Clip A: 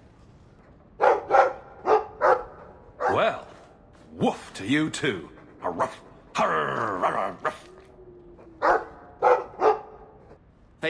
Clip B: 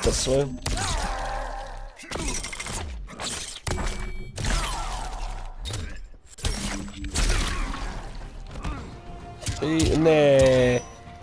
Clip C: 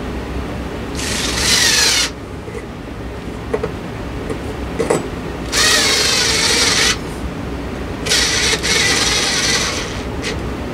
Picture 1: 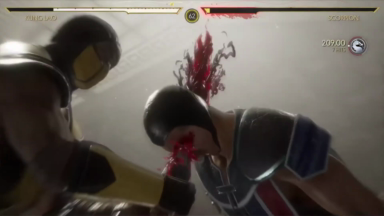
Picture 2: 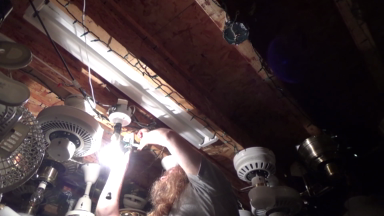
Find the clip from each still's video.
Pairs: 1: B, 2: C